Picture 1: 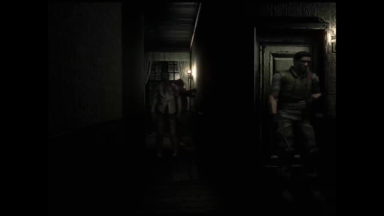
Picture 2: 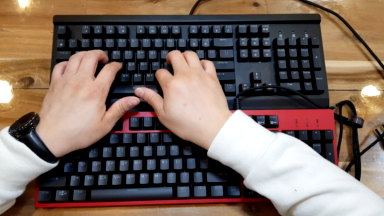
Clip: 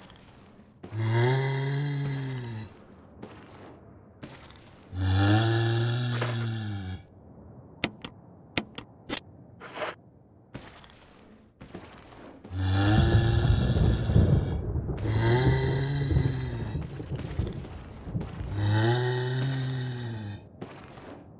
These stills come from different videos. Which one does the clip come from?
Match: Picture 1